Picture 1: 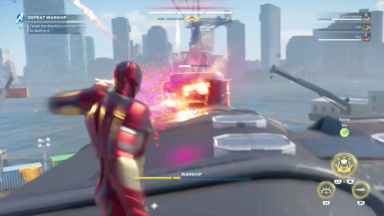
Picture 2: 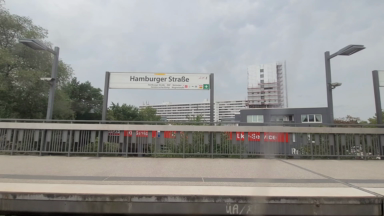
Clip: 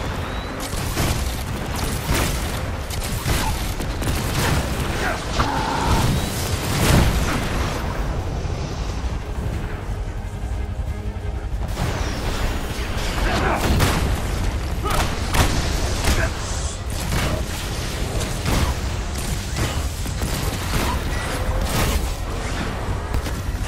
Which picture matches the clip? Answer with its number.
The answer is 1